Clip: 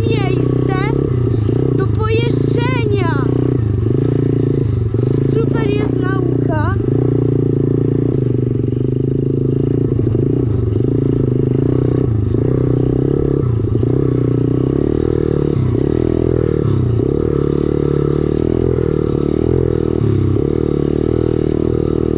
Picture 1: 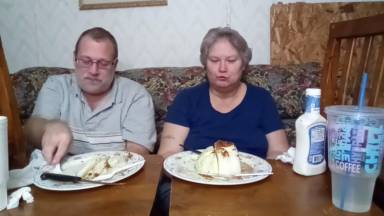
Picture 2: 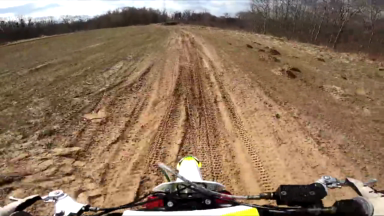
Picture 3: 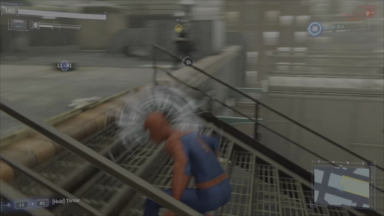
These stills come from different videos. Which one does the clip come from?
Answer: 2